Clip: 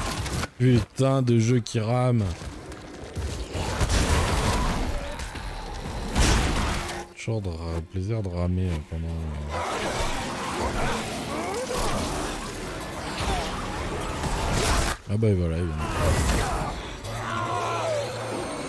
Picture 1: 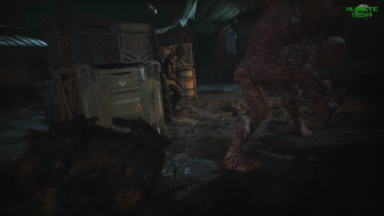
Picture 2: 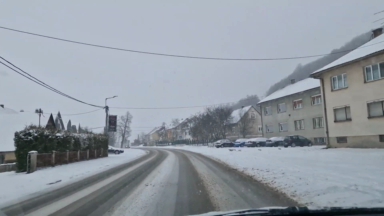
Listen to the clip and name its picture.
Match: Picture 1